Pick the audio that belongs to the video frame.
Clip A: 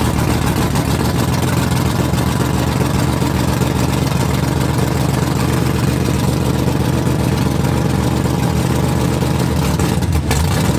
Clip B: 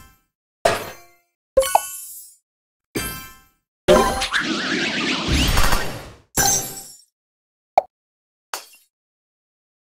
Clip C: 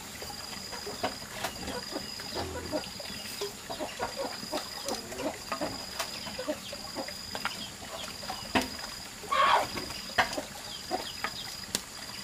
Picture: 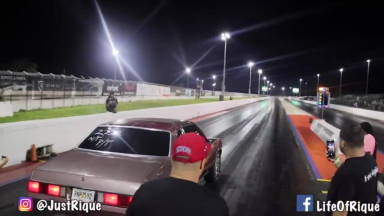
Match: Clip A